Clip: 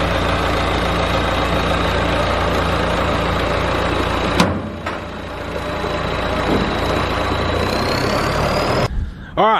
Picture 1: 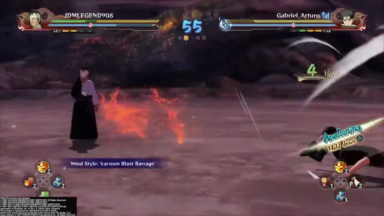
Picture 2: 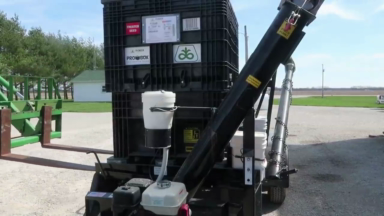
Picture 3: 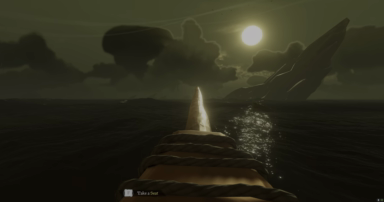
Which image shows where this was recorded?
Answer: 2